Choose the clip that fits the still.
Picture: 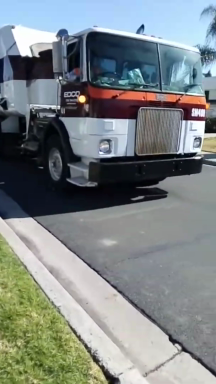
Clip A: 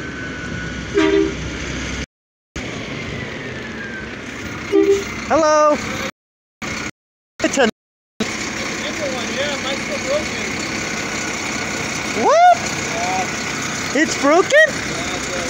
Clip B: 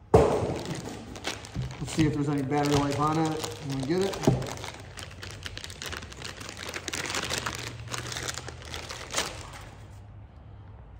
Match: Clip A